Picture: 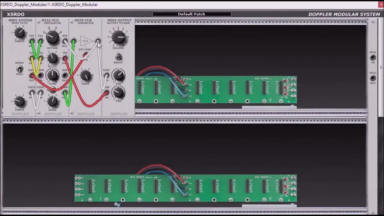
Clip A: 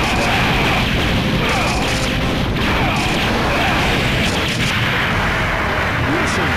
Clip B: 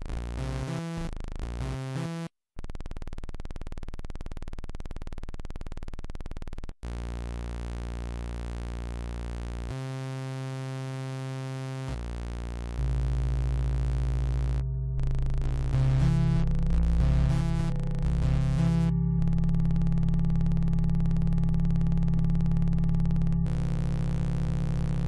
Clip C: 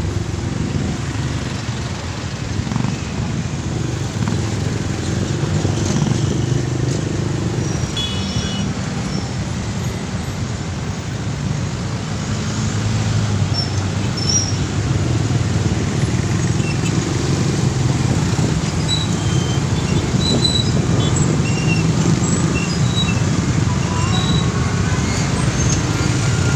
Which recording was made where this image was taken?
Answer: B